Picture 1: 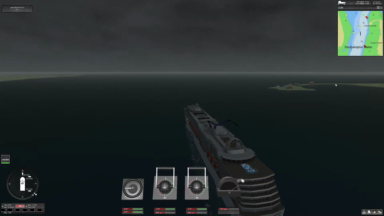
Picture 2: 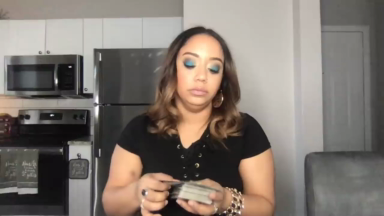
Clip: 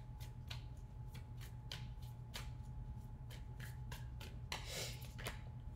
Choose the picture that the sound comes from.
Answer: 2